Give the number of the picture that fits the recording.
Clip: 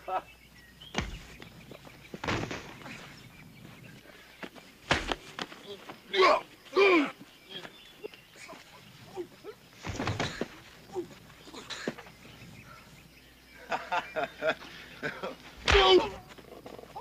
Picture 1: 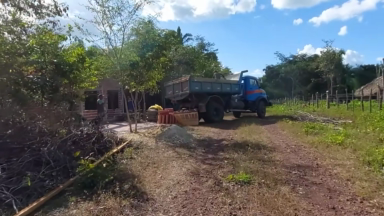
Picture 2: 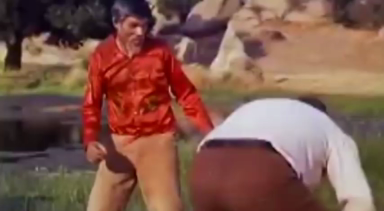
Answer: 2